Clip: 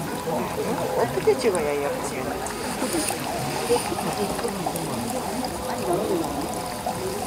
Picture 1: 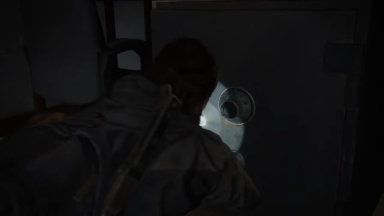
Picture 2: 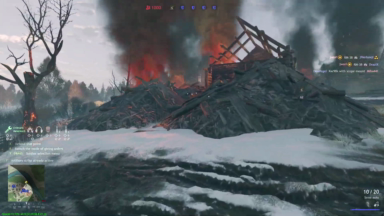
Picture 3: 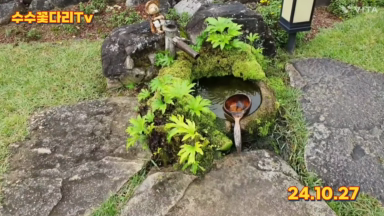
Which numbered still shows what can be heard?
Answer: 3